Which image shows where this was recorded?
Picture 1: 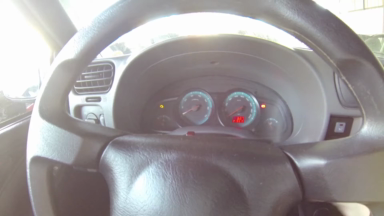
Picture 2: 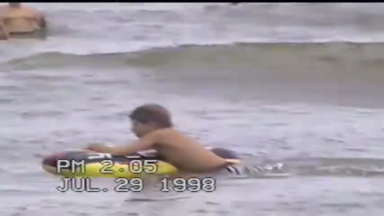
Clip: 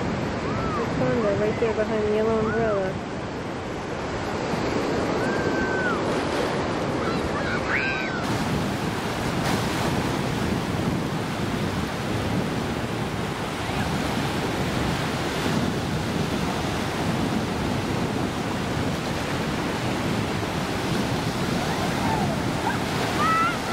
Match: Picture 2